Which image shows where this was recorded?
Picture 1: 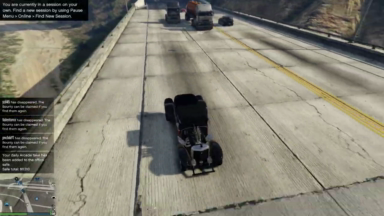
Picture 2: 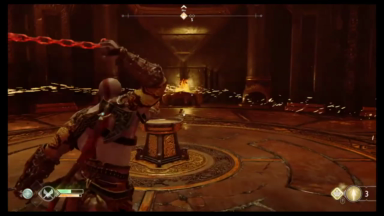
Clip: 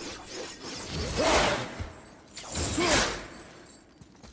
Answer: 2